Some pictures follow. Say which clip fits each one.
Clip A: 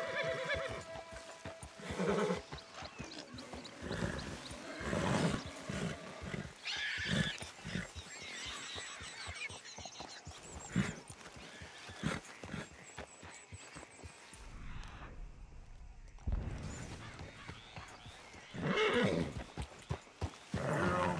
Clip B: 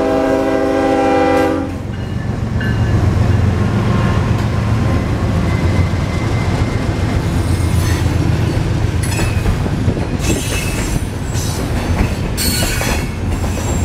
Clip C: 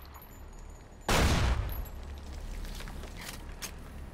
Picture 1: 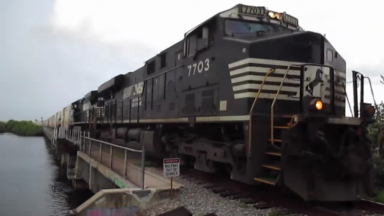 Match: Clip B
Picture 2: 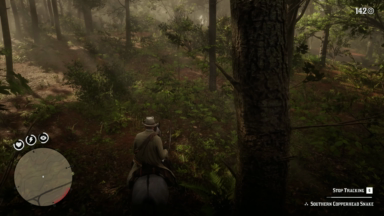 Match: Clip A